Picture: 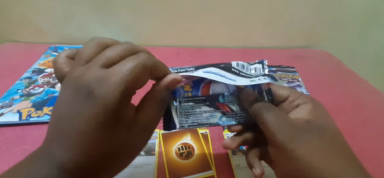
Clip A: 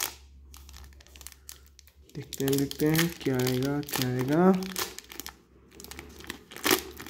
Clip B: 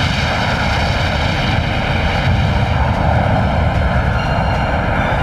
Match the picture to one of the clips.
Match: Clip A